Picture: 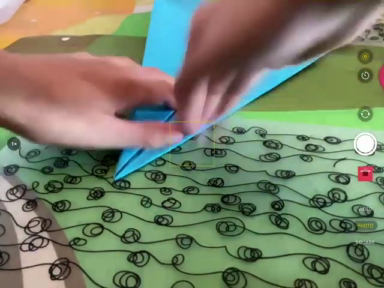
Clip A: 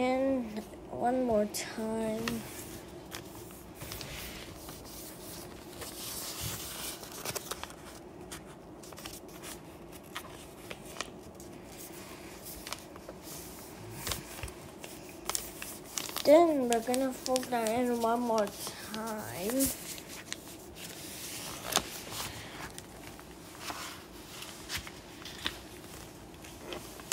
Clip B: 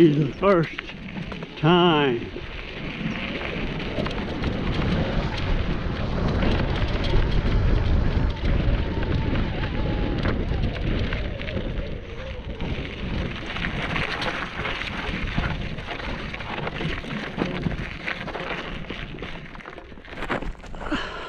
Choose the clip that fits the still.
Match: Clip A